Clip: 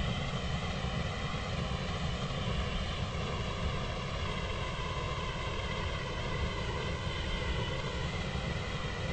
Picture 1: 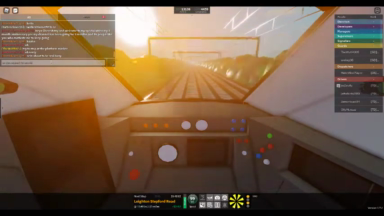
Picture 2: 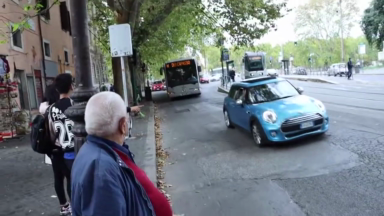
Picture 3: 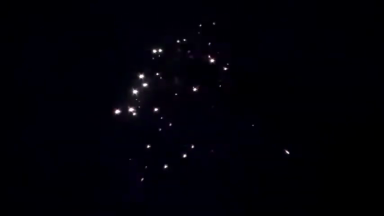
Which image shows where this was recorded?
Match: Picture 1